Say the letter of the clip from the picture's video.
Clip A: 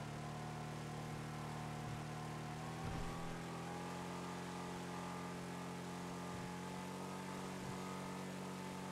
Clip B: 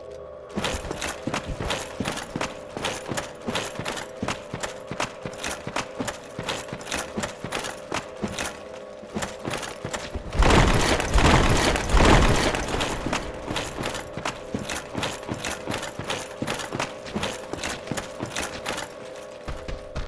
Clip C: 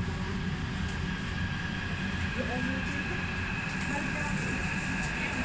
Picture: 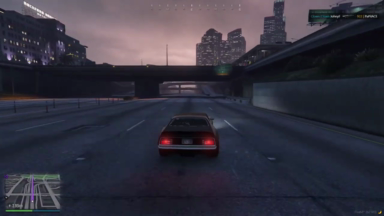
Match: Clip A